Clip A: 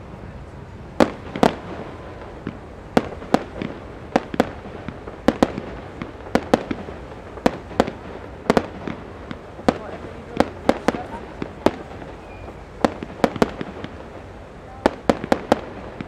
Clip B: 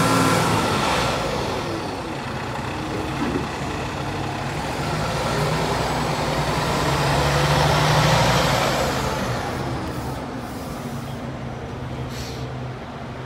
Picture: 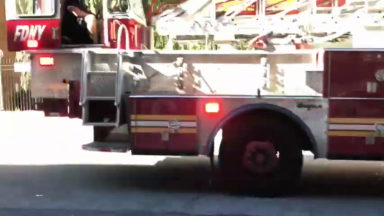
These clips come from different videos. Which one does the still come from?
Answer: B